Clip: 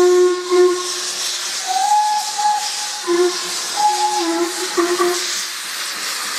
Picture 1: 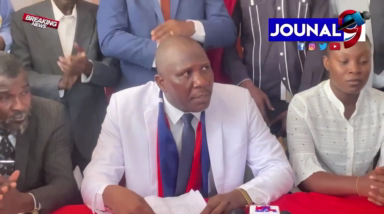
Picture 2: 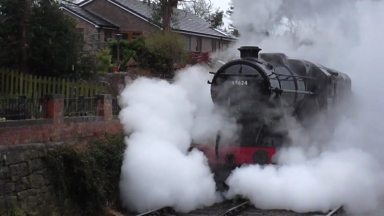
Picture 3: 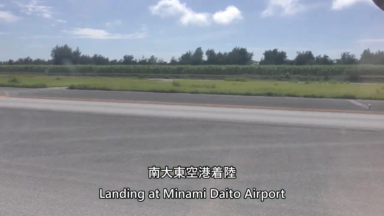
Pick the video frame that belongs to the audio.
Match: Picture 2